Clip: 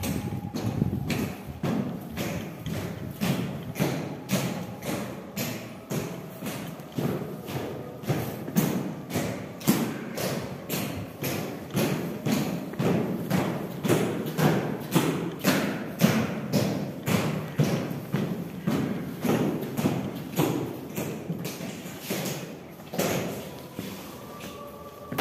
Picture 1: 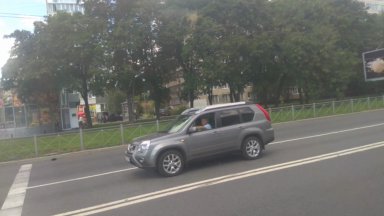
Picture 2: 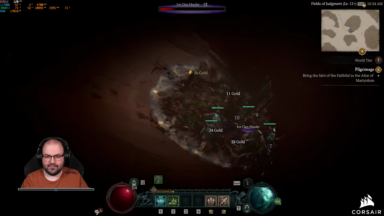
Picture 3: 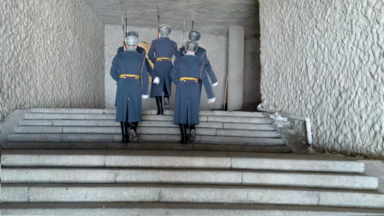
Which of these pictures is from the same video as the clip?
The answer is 3